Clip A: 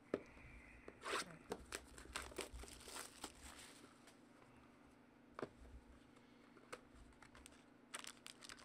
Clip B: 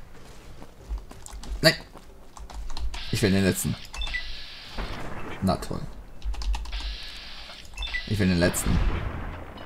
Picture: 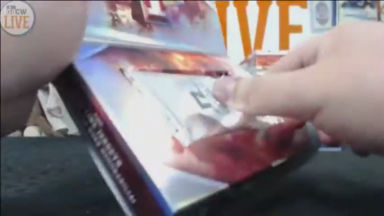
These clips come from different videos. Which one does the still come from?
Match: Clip A